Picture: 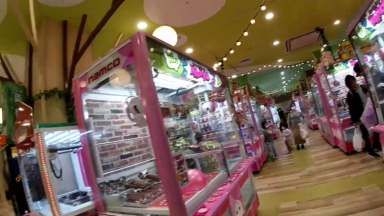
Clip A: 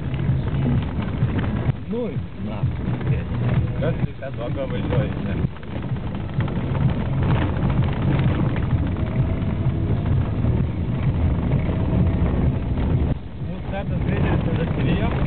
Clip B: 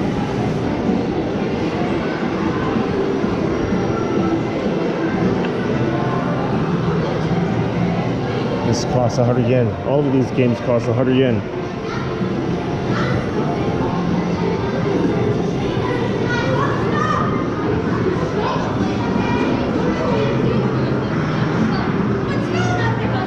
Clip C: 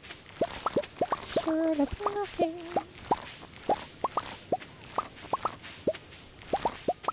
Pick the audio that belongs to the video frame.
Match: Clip B